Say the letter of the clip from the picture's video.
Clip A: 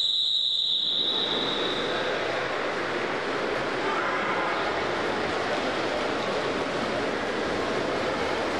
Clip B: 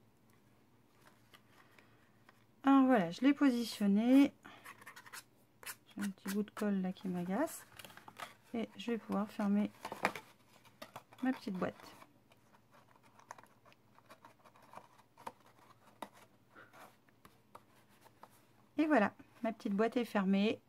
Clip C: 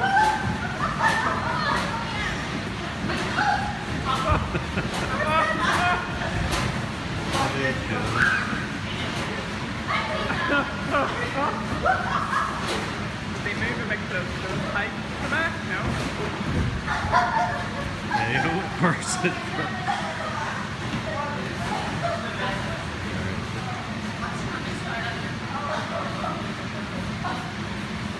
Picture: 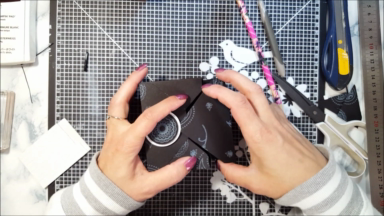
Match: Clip B